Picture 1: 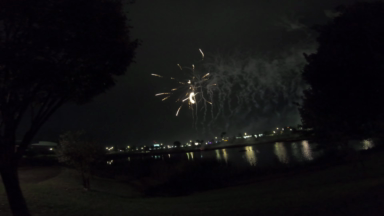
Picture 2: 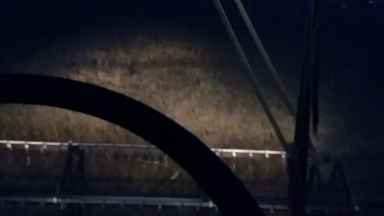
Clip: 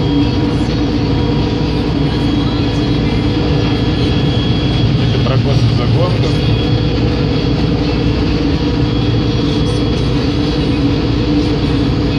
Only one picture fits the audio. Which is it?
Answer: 2